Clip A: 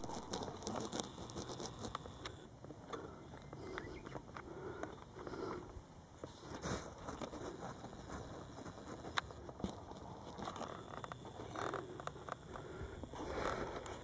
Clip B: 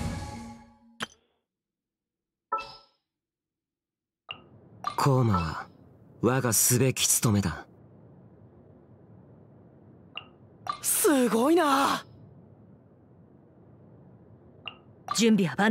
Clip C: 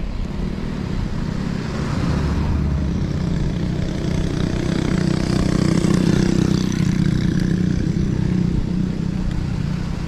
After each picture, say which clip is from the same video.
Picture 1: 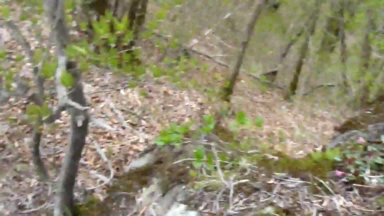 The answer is A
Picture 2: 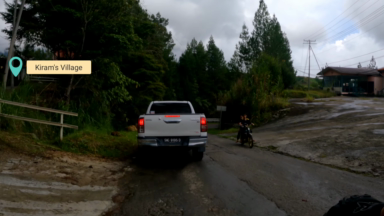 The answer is C